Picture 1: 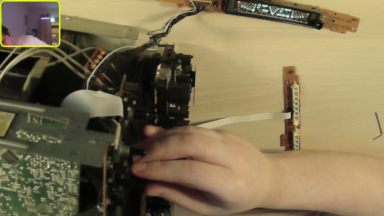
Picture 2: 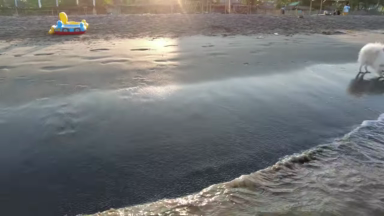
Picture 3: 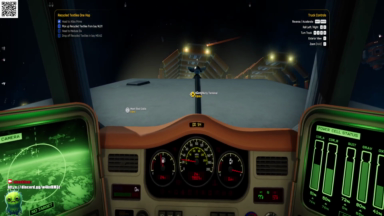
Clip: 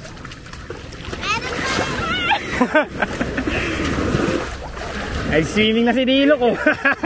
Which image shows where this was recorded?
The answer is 2